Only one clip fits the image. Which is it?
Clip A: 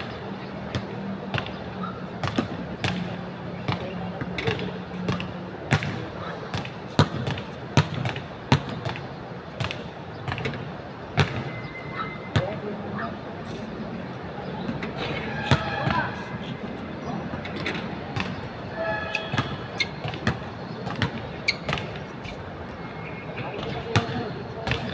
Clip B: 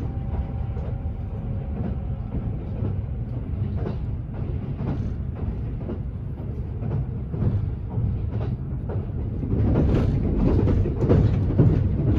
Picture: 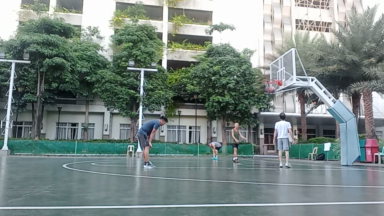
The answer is A